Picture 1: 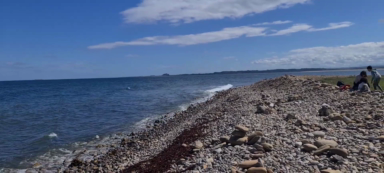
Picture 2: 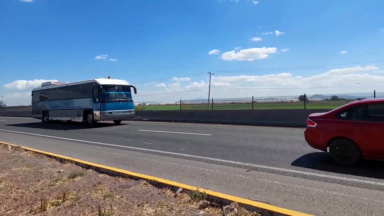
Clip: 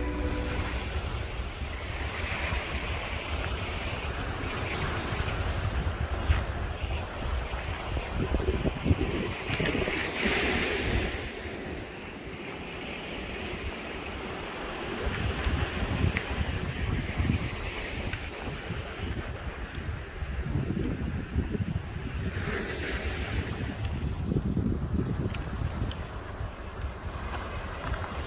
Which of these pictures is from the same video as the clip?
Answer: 1